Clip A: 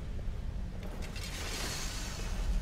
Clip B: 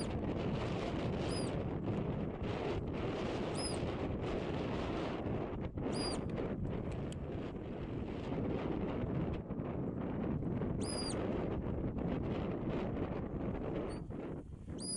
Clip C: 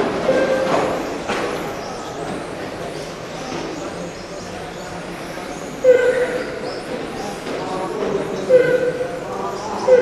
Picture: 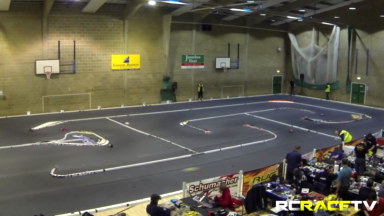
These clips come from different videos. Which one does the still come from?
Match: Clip C